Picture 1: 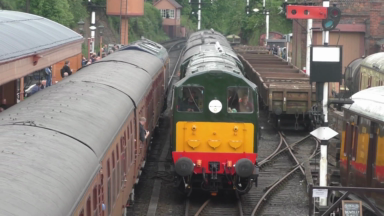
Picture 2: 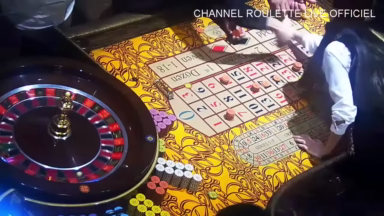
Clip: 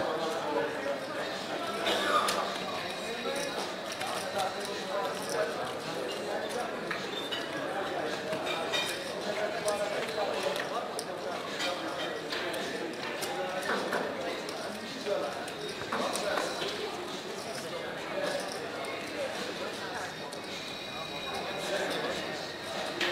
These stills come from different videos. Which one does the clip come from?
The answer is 2